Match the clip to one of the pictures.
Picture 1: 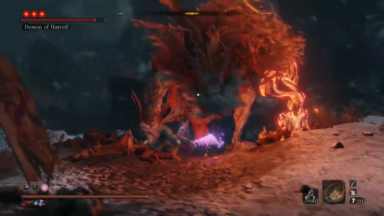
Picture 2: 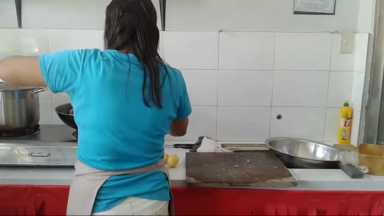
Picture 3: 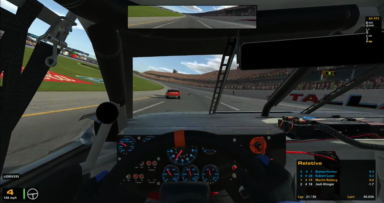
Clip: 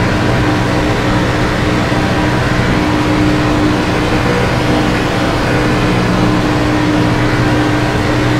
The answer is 3